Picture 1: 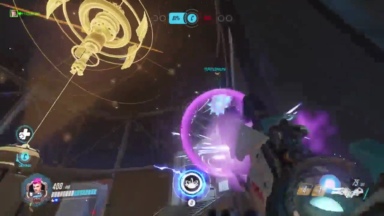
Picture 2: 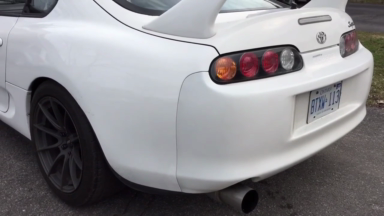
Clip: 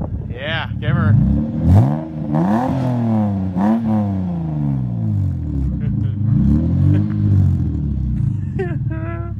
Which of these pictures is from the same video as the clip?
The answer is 2